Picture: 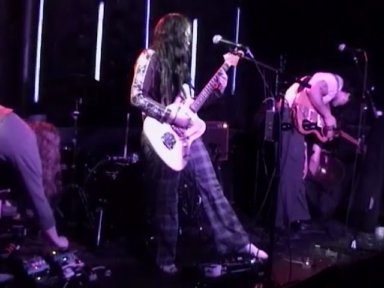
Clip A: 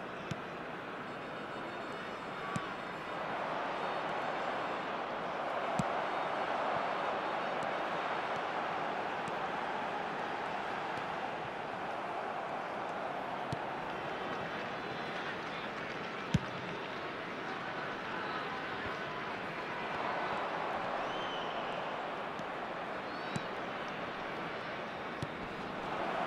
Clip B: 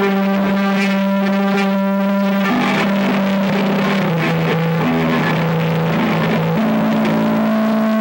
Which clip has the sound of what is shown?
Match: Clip B